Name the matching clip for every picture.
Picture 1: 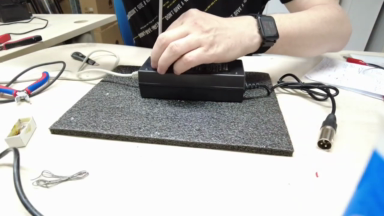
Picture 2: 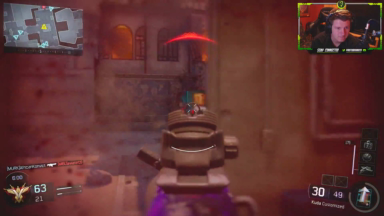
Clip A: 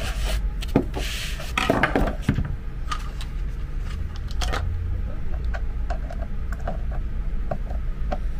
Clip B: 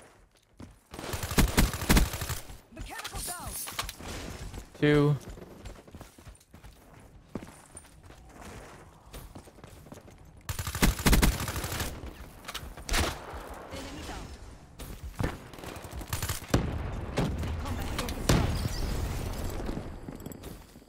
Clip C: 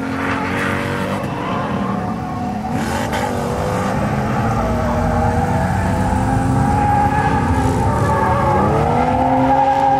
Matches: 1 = A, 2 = B